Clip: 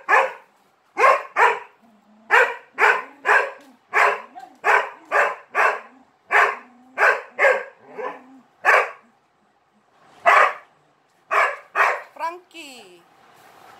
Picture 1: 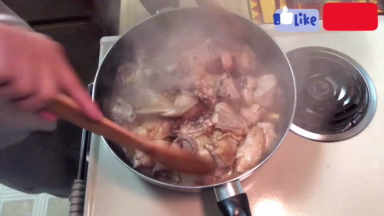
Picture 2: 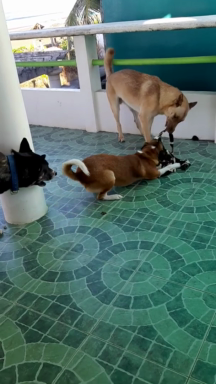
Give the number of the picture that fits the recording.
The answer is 2